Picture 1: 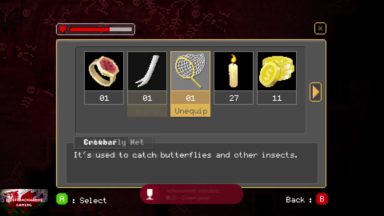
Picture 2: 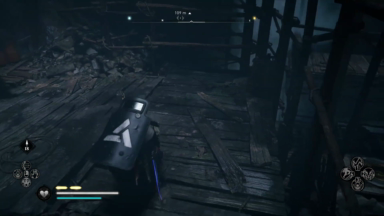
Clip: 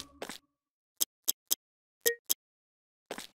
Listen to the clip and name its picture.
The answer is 1